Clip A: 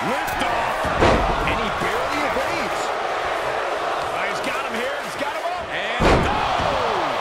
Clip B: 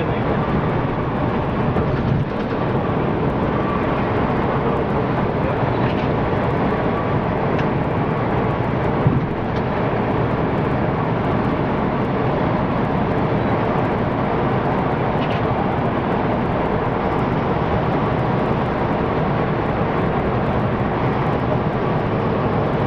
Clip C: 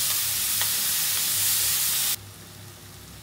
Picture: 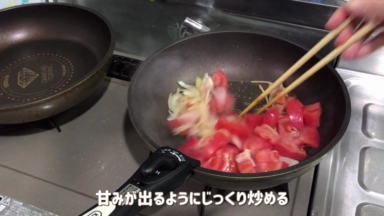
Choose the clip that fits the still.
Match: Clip C